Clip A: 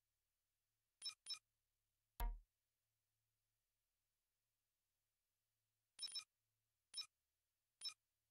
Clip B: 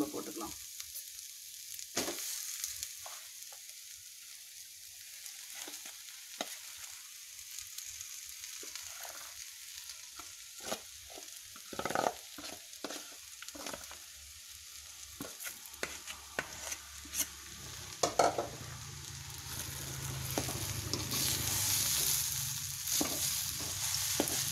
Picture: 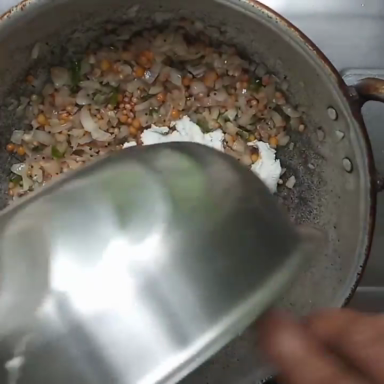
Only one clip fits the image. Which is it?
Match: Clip B